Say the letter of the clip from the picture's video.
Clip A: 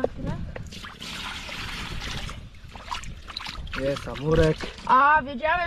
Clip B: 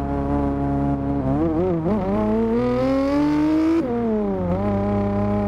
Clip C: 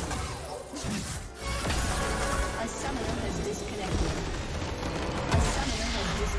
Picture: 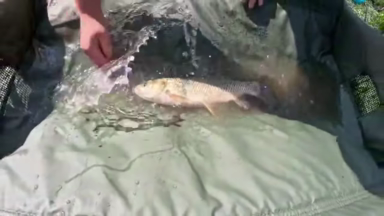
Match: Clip A